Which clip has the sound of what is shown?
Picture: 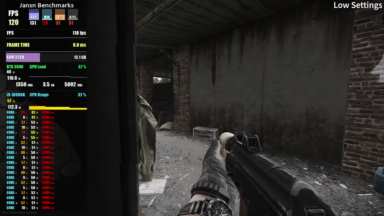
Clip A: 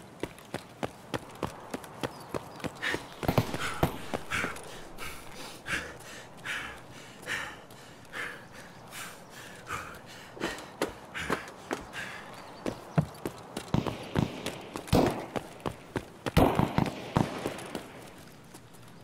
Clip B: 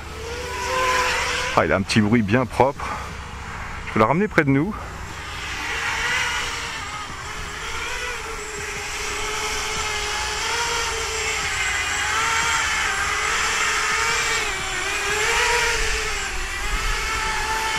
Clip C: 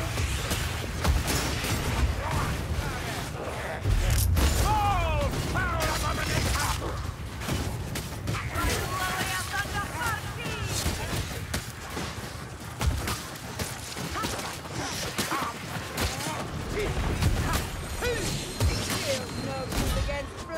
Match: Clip A